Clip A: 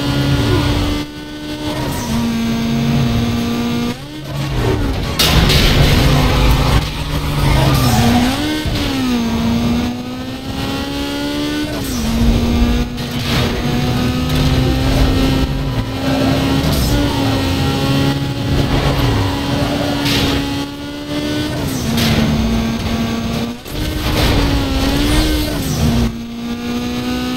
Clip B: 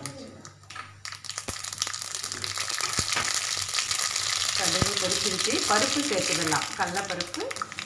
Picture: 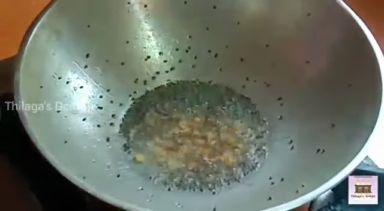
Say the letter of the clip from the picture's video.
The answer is B